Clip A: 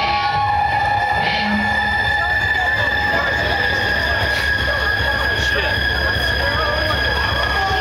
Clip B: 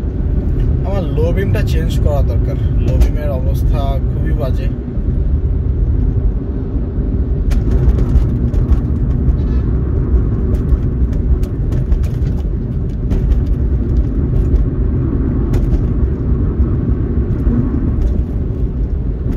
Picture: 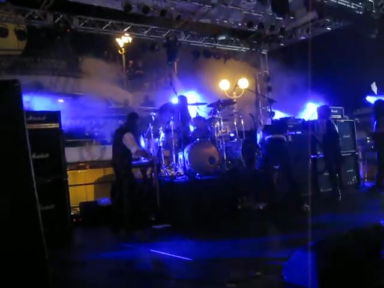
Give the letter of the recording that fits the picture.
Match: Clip A